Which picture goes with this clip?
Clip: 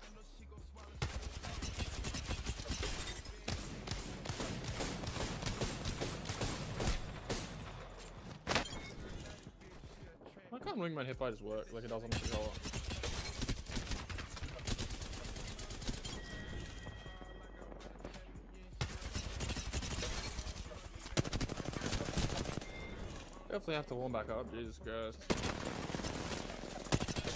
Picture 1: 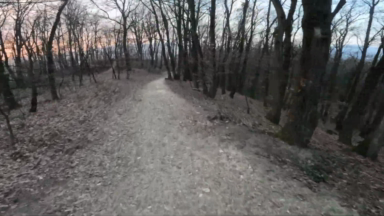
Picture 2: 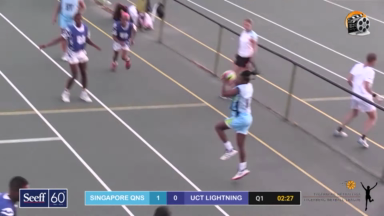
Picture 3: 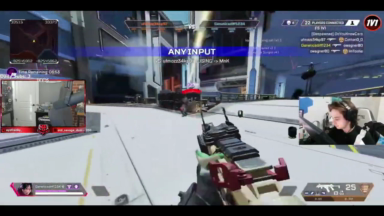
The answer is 3